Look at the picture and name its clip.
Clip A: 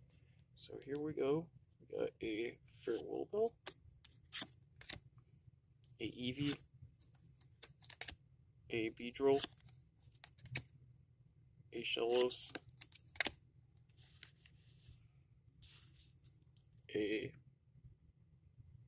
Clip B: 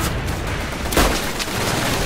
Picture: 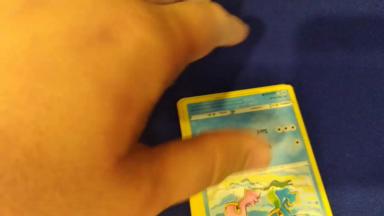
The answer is A